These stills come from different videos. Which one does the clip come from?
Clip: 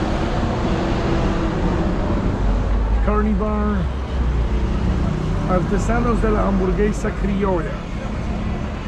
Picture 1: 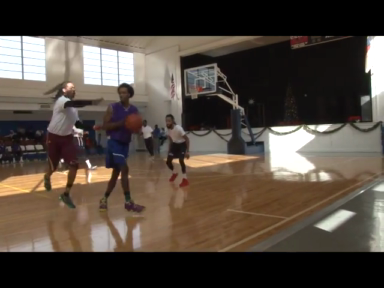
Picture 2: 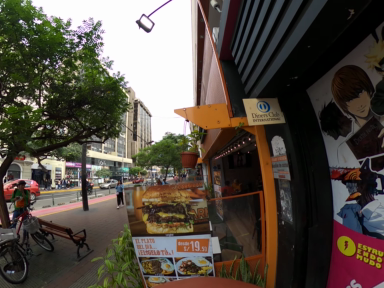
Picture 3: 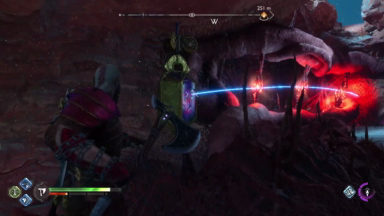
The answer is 2